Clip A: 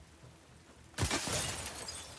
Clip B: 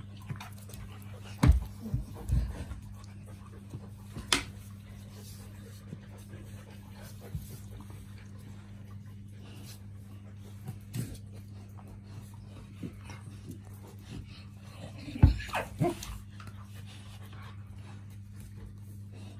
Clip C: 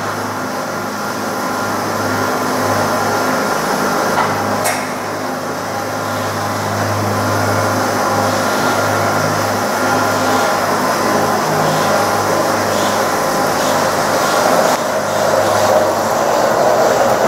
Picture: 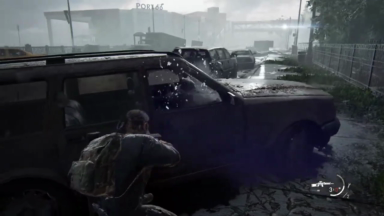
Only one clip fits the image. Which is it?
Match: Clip A